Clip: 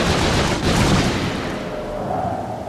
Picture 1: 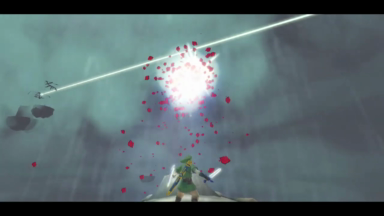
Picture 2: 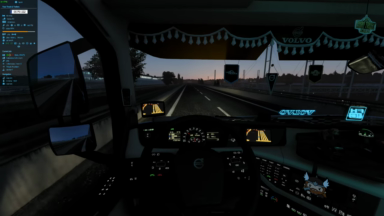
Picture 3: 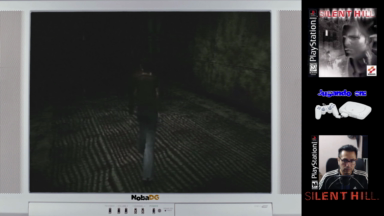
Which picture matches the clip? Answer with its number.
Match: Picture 1